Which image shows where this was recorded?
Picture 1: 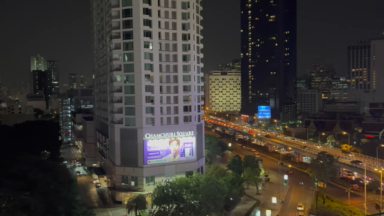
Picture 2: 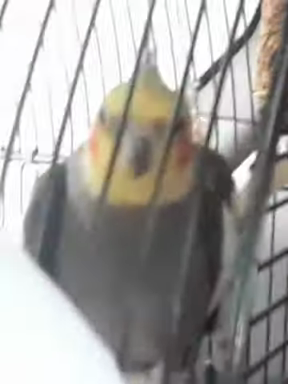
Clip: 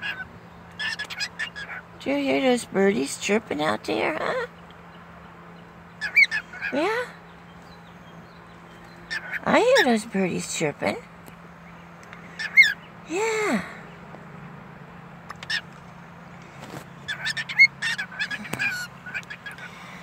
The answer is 2